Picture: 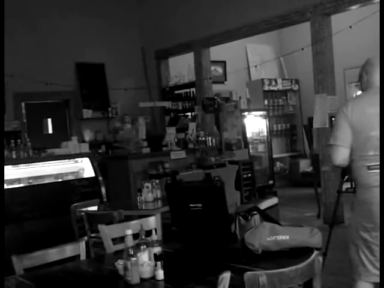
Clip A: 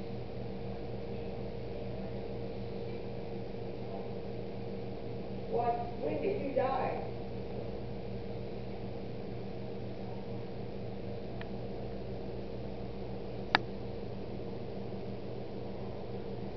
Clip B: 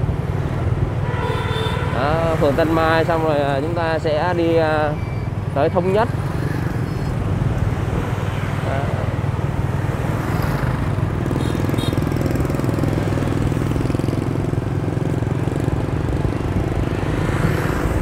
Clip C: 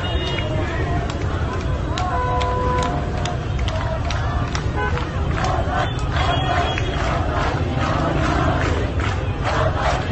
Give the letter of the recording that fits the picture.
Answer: A